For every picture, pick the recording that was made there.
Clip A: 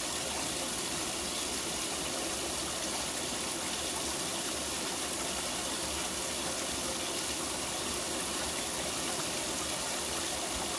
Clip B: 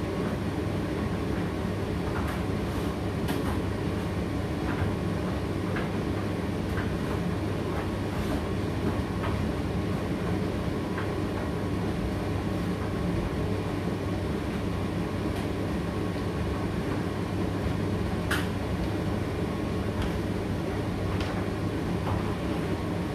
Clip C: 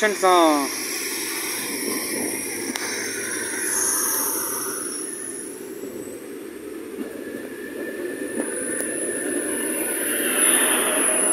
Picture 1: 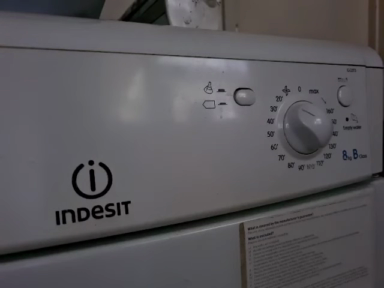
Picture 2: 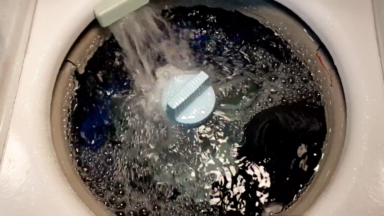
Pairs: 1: B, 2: A